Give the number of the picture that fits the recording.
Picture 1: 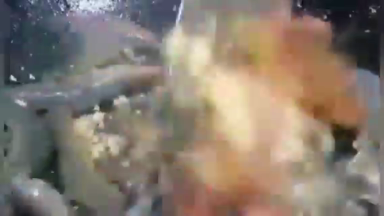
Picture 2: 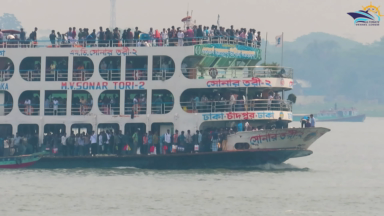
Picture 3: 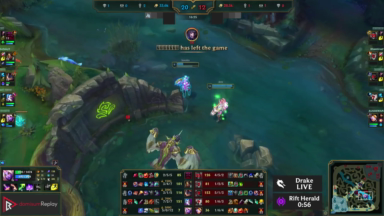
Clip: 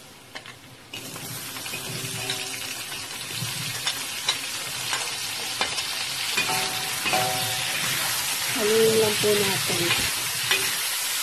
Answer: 1